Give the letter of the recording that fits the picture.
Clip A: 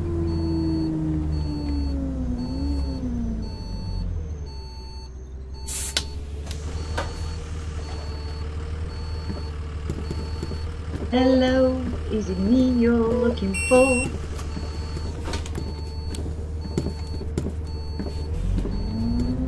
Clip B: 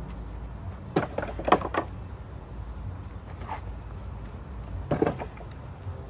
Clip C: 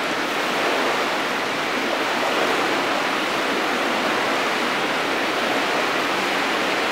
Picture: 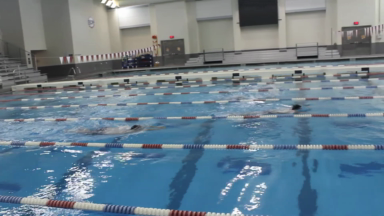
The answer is C